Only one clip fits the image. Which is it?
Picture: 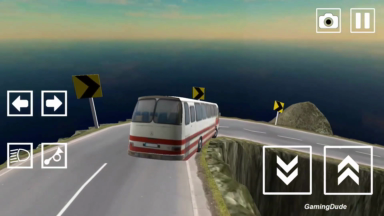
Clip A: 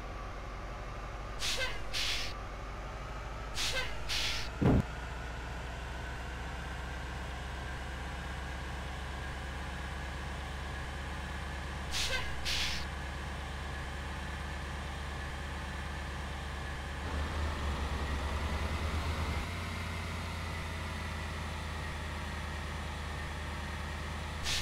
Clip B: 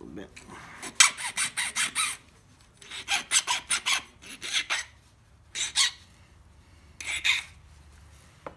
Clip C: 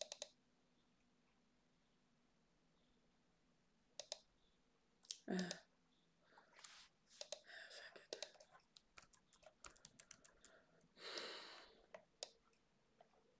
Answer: A